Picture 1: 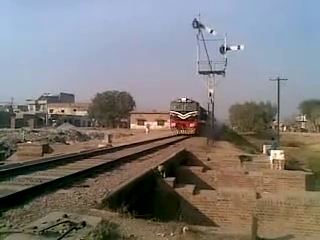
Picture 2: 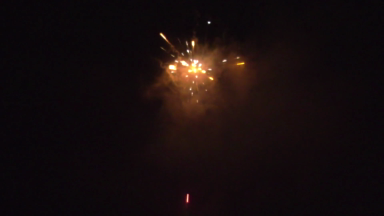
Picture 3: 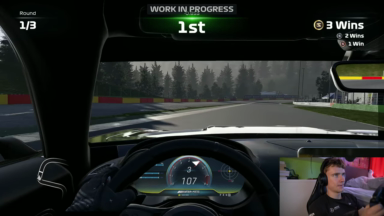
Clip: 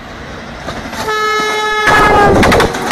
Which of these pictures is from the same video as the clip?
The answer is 1